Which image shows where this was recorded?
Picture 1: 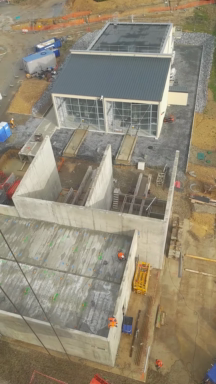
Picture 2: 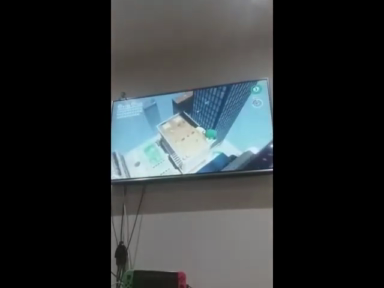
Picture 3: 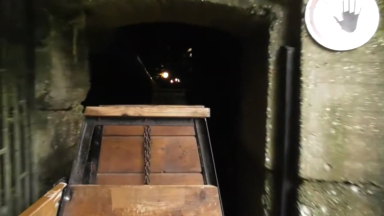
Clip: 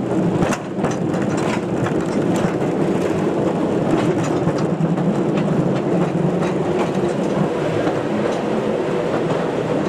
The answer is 3